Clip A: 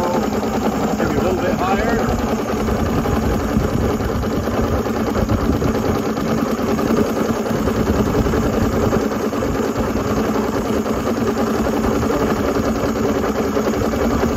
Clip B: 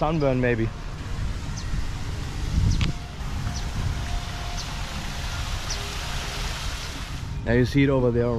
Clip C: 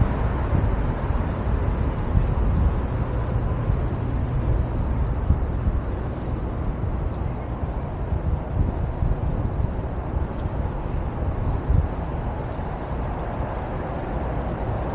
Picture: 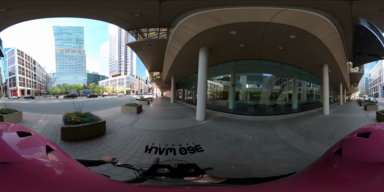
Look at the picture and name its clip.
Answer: C